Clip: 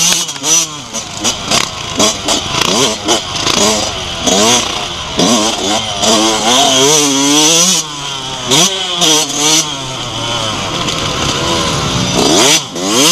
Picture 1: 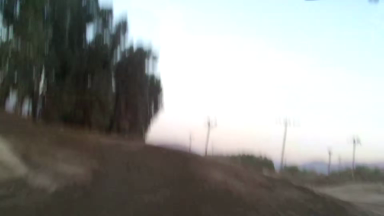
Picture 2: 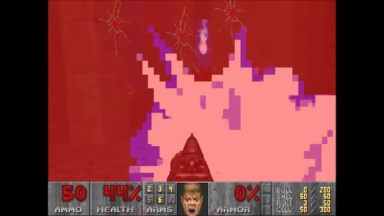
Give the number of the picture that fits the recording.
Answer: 1